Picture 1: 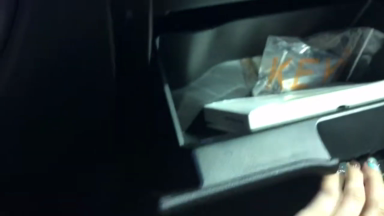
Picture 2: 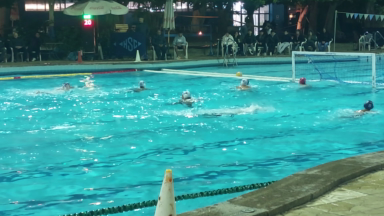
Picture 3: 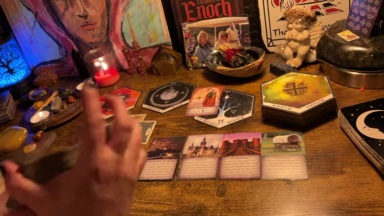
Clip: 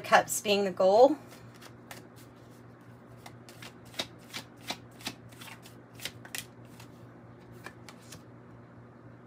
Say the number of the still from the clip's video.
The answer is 3